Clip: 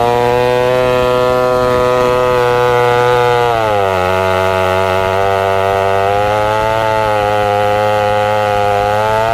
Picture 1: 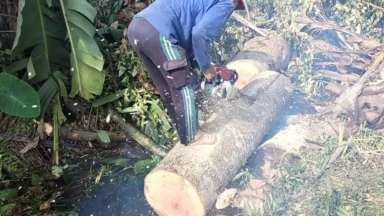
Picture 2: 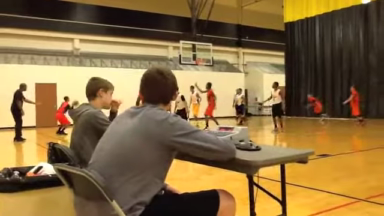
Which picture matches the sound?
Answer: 1